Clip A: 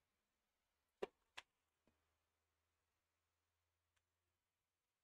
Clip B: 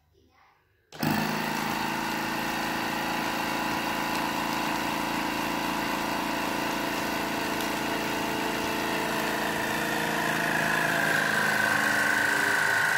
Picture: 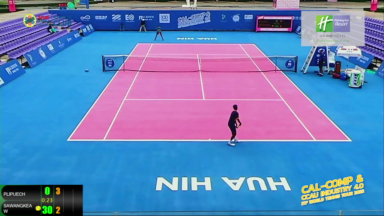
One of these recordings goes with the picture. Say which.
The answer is A